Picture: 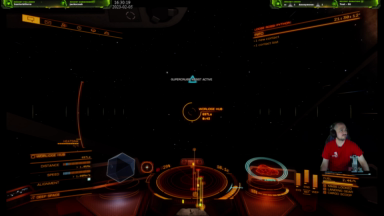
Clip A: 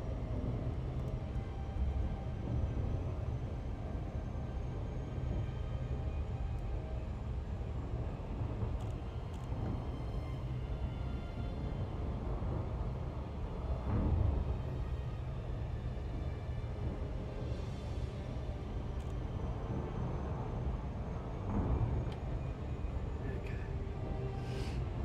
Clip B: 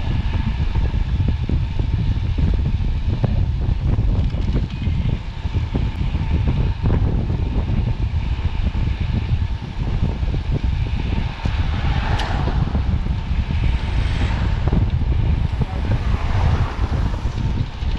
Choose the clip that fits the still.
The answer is A